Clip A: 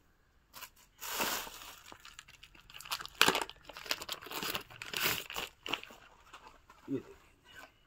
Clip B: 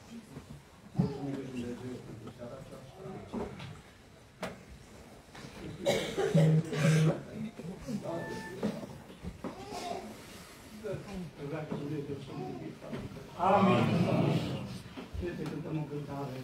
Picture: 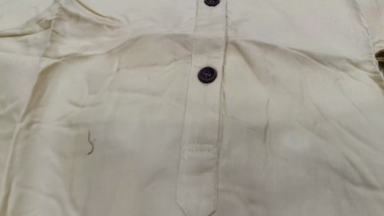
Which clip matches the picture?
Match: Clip A